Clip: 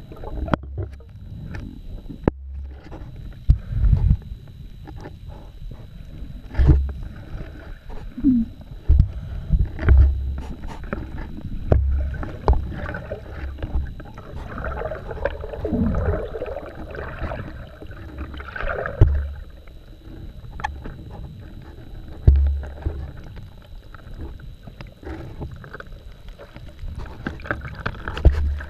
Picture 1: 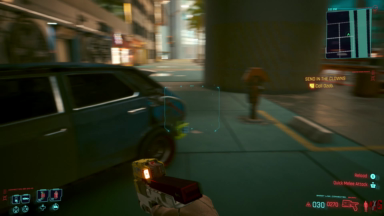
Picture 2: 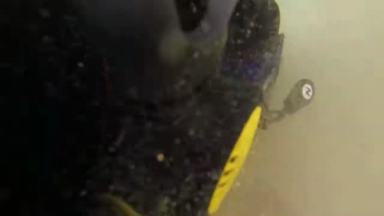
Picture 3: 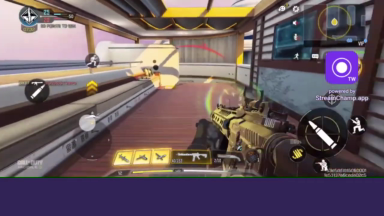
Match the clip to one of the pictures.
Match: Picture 2